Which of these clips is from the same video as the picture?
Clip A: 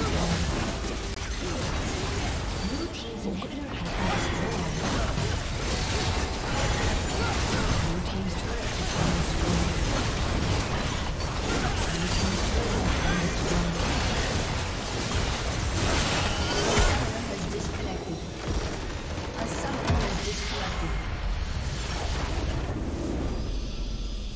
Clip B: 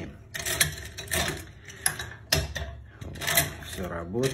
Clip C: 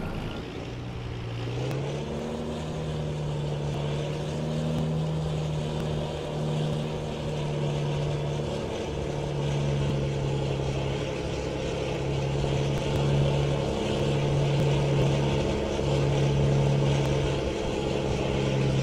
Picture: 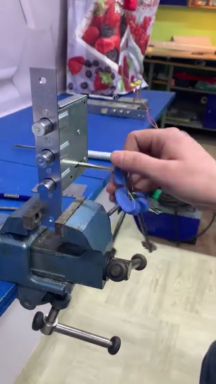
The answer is B